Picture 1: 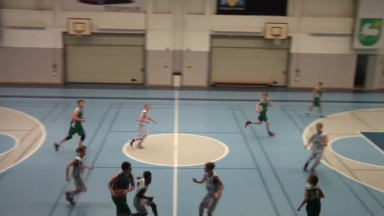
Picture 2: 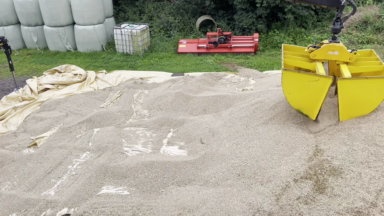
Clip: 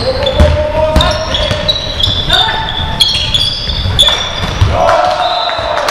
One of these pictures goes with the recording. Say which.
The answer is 1